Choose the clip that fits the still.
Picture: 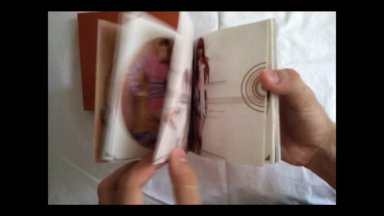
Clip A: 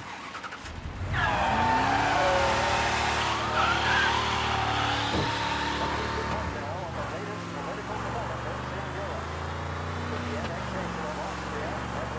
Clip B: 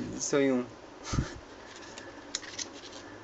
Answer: B